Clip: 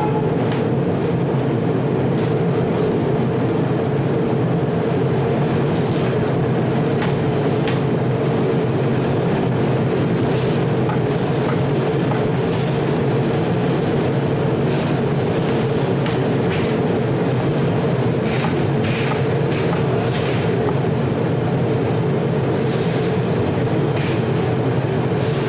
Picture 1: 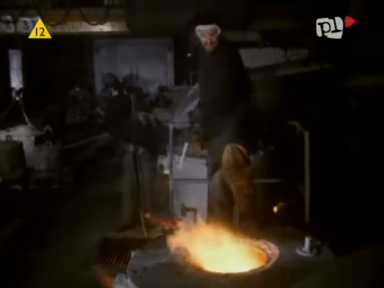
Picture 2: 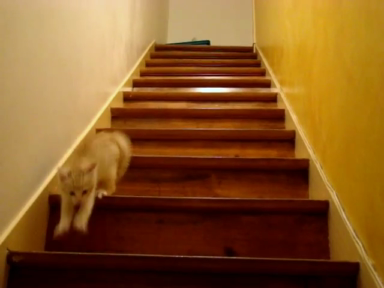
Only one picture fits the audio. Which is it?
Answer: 1